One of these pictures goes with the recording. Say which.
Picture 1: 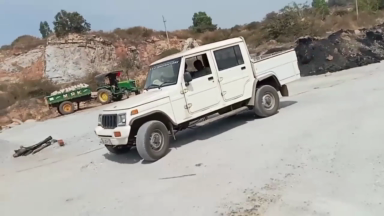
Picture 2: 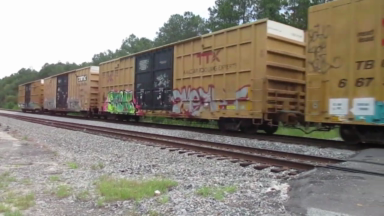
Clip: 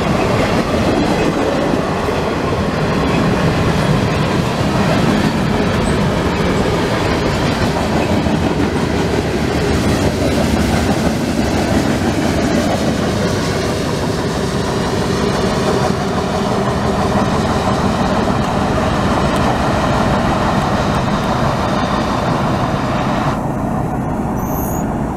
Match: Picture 2